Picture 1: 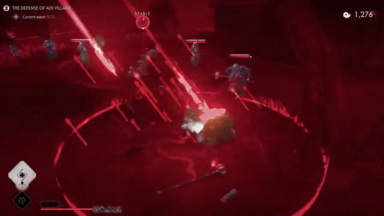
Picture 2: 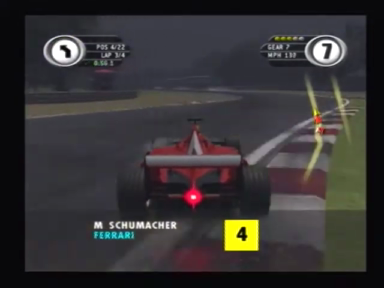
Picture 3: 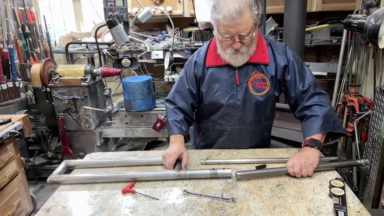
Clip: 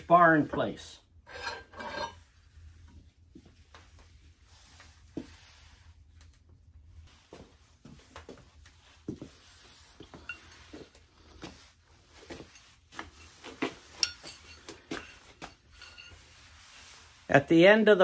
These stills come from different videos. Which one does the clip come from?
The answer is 3